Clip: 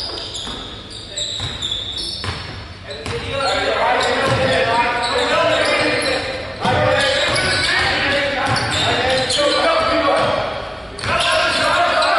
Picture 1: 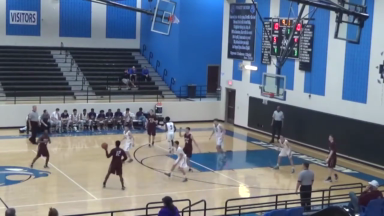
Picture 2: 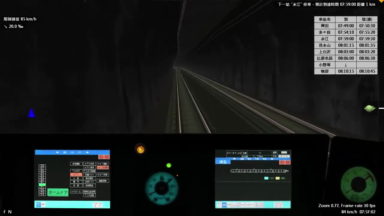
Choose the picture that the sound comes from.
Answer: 1